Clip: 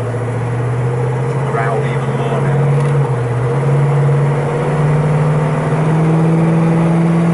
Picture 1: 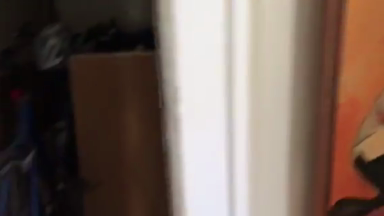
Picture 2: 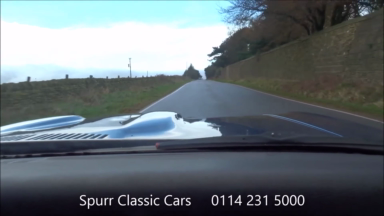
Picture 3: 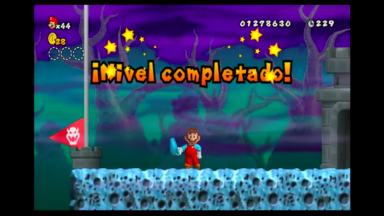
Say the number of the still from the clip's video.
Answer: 2